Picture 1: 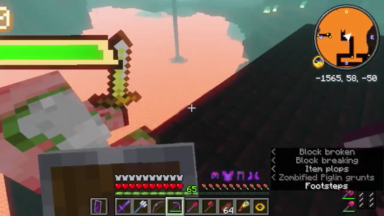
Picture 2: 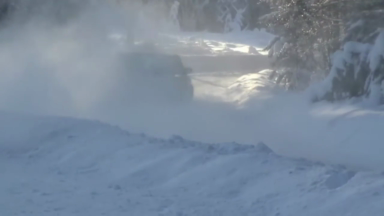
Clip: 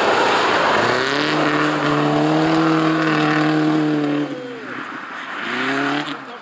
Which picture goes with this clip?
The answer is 2